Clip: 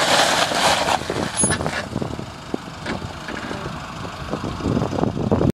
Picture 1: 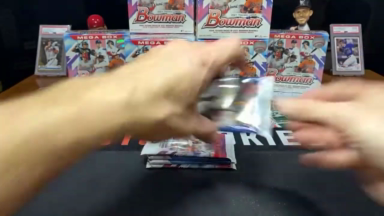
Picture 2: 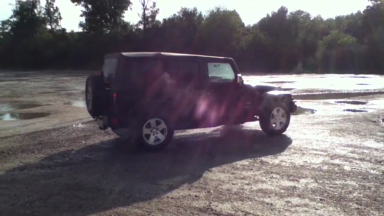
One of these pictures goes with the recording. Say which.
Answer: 2